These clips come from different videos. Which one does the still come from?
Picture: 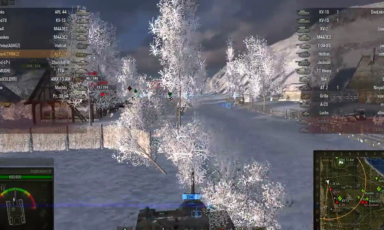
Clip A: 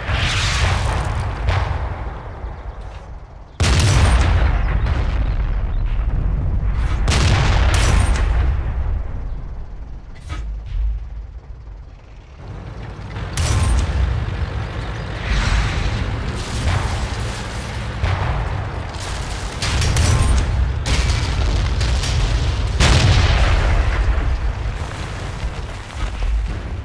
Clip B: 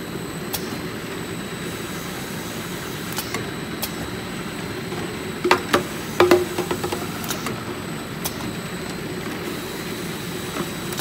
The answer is A